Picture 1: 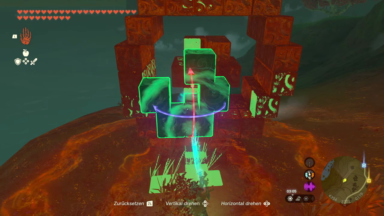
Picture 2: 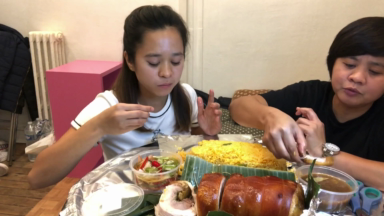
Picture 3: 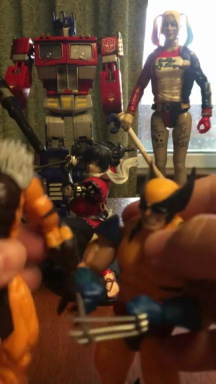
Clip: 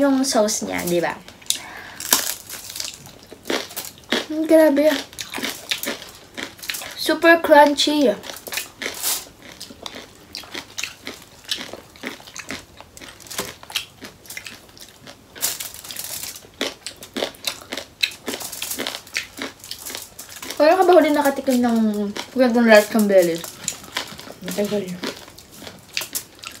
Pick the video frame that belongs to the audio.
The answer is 2